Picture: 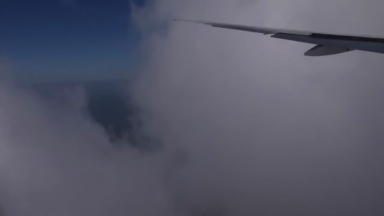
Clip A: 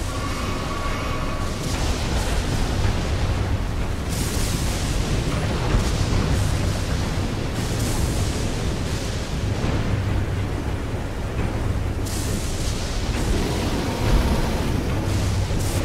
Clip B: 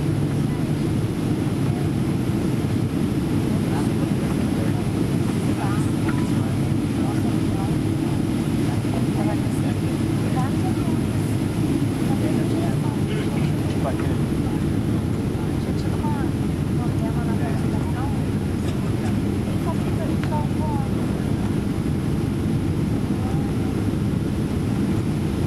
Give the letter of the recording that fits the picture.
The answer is B